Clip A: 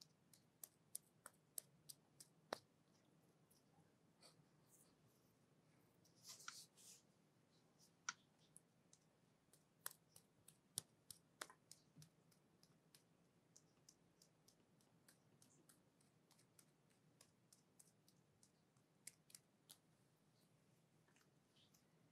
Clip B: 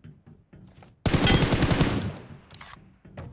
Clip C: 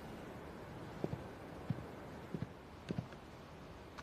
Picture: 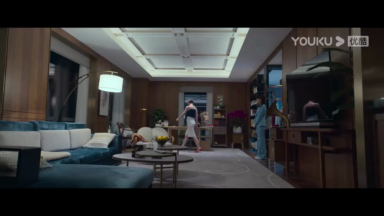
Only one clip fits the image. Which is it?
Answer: C